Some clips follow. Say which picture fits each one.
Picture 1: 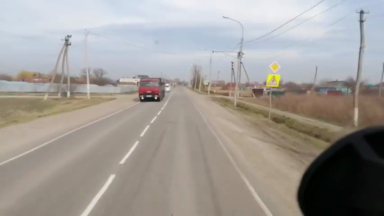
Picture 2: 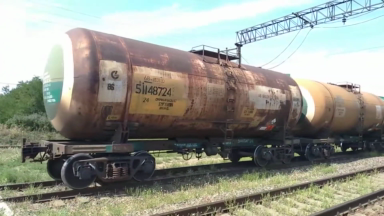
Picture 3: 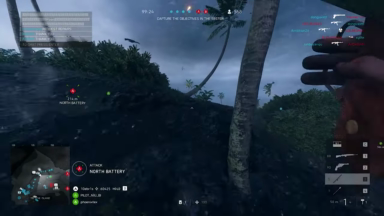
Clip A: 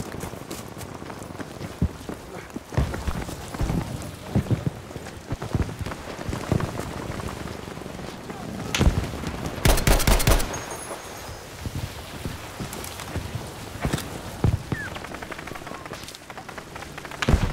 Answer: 3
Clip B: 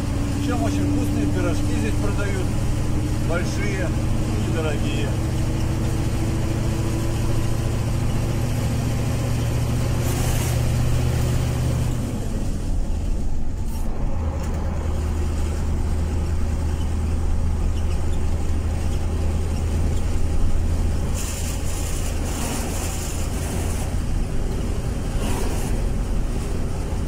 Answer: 1